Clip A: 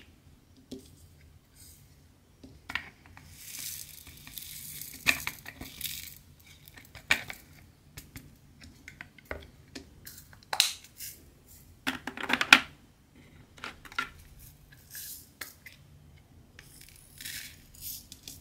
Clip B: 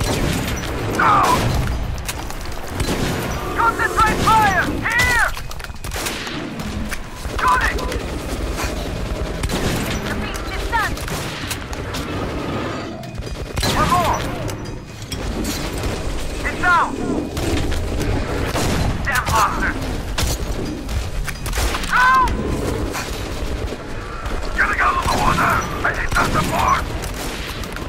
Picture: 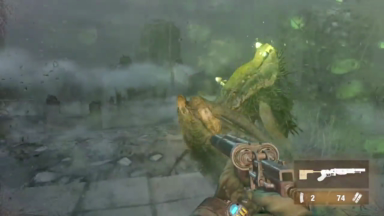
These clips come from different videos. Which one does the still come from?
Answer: B